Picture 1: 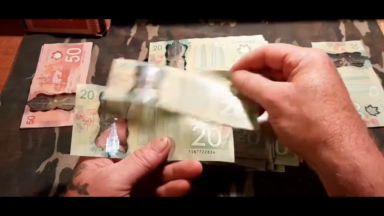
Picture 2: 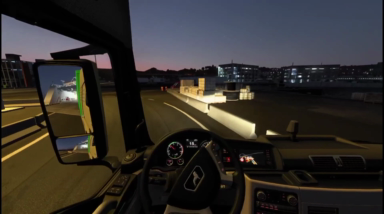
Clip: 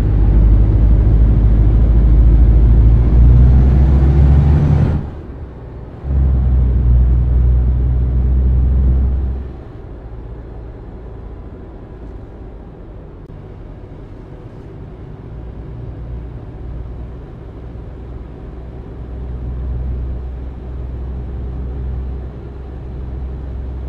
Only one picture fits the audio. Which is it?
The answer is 2